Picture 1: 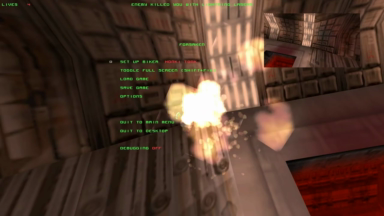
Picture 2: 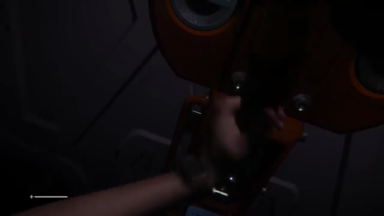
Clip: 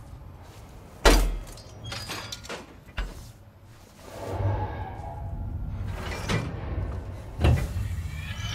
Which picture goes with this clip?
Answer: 2